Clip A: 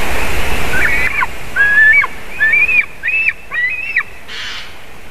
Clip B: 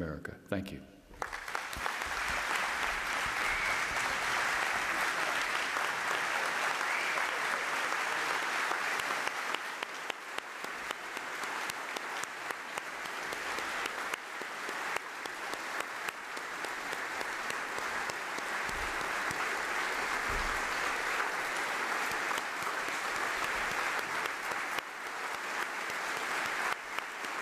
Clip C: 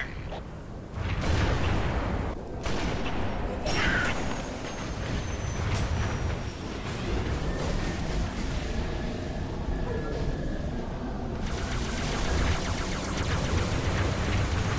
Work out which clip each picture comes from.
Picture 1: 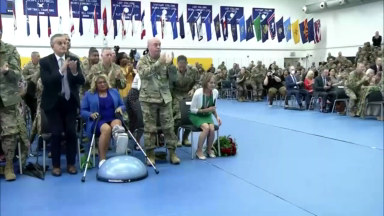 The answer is B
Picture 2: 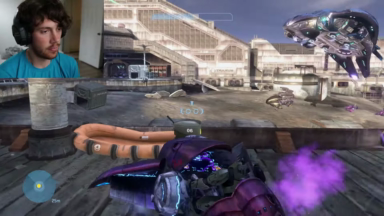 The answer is C